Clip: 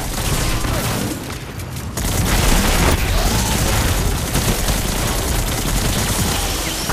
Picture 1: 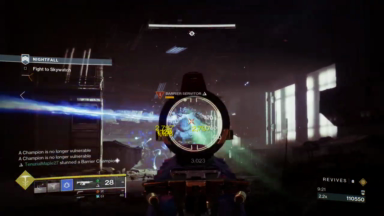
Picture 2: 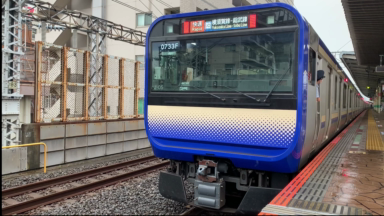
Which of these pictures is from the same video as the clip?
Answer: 1